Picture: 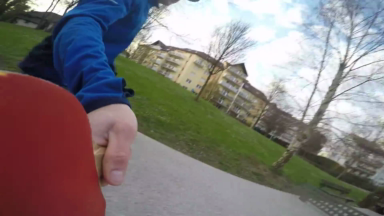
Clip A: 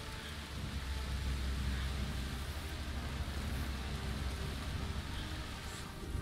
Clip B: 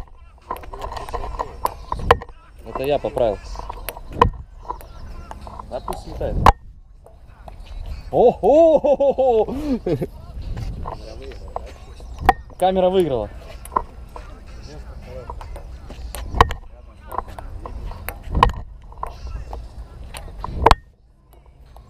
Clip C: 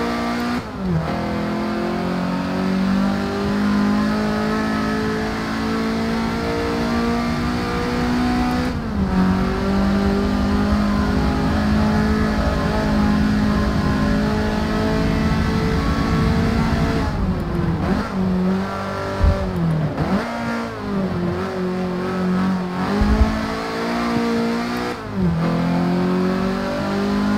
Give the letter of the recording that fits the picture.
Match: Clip B